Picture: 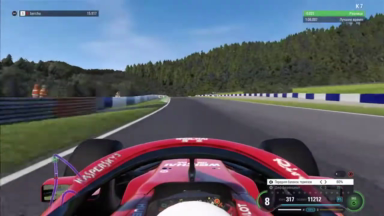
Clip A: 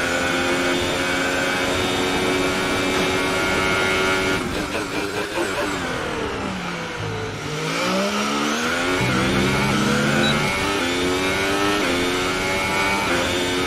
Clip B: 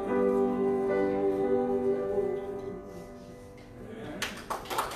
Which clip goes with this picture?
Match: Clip A